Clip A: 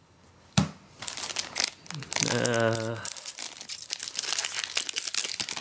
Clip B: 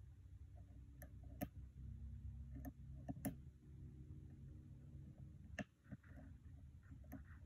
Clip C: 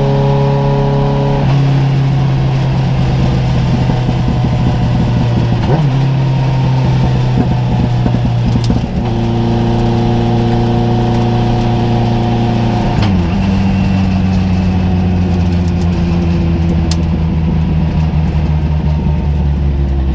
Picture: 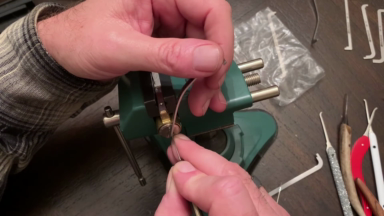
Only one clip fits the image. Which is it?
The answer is B